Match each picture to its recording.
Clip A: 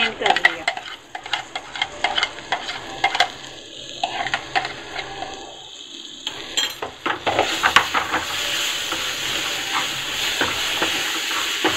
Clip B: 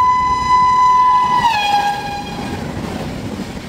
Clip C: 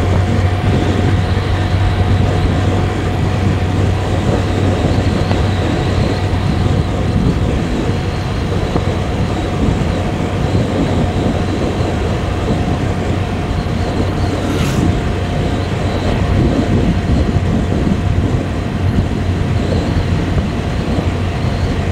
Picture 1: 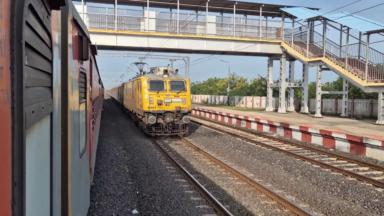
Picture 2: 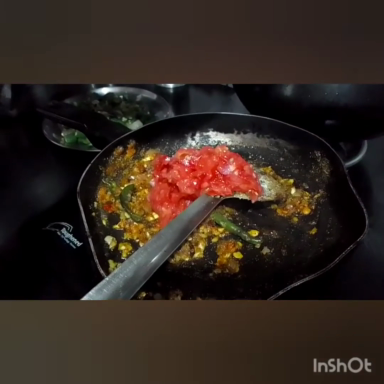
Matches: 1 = B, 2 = A